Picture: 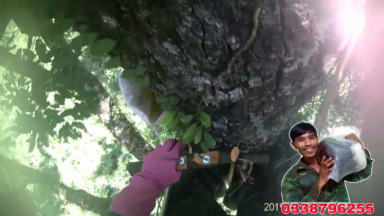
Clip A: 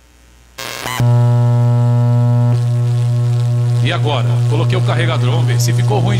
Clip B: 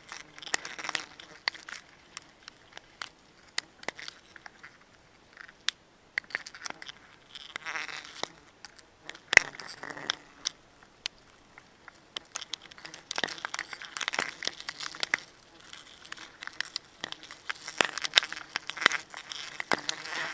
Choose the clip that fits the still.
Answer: B